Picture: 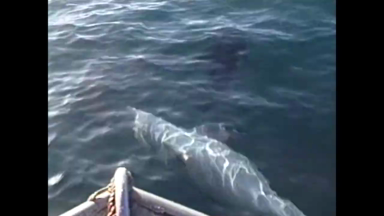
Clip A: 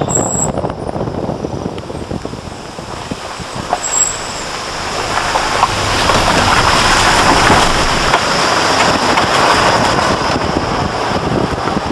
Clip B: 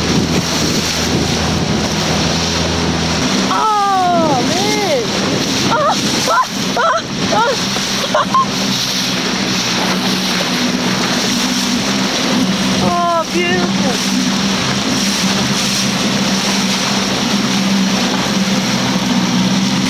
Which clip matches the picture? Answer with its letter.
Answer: B